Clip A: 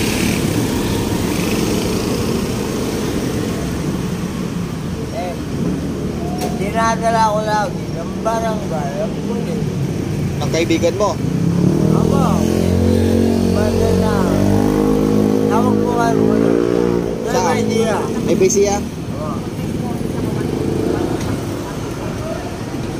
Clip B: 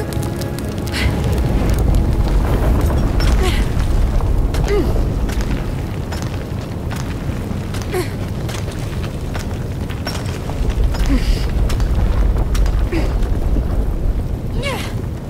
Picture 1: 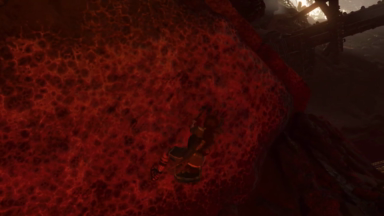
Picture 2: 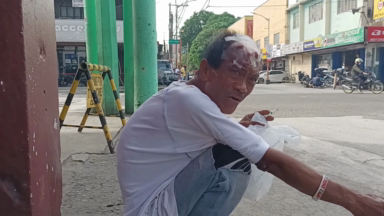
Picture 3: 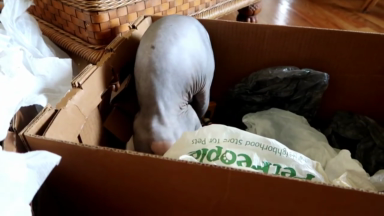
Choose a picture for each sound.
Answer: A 2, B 1